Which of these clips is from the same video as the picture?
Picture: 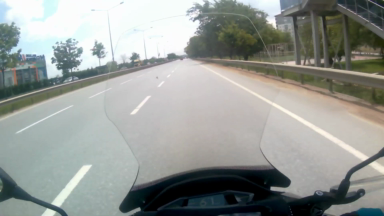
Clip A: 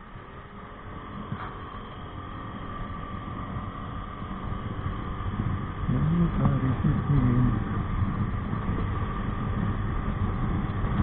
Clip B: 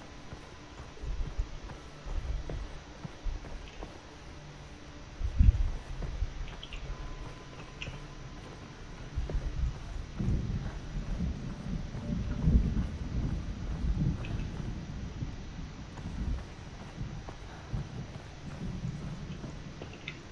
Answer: A